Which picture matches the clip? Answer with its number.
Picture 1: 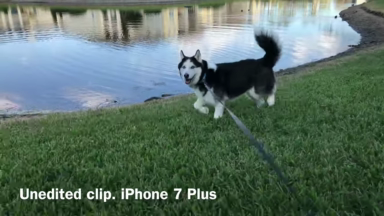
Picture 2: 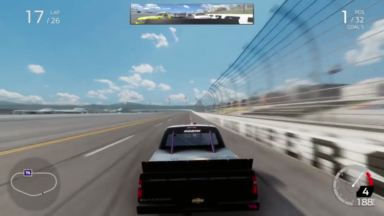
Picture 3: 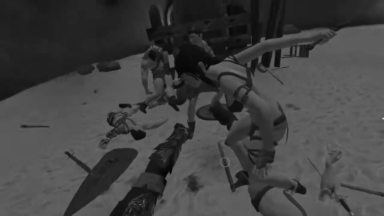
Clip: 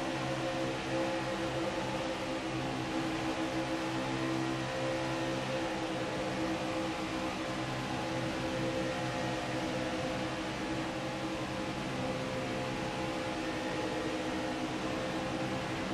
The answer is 2